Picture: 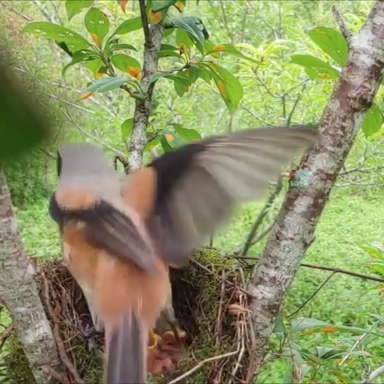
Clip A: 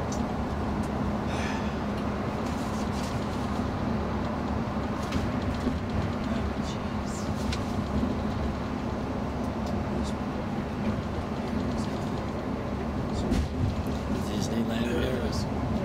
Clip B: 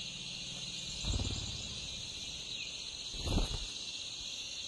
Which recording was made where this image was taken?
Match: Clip B